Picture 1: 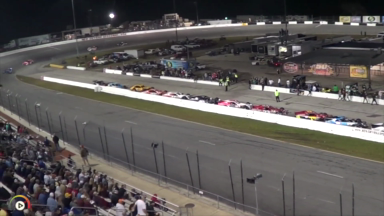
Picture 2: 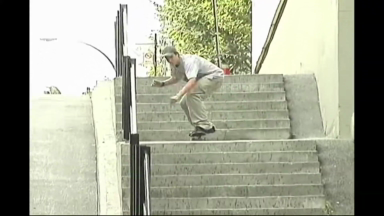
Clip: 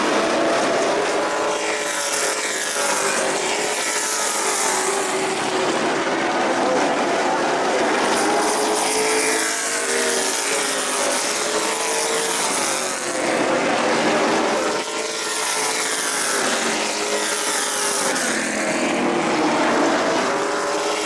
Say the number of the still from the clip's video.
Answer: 1